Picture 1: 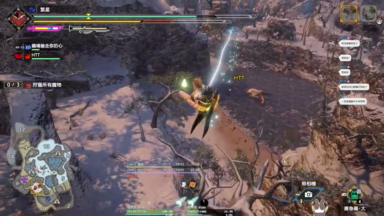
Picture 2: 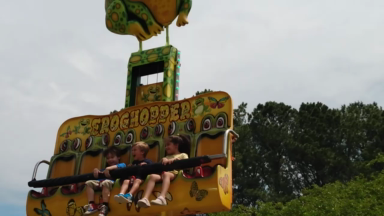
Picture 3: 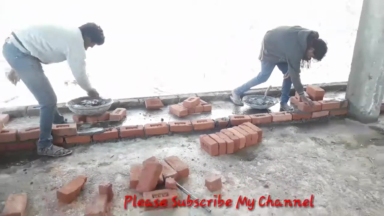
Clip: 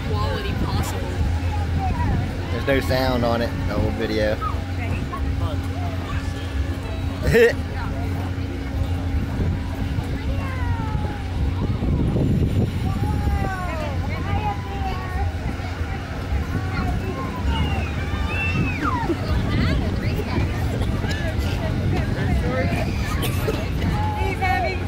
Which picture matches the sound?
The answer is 2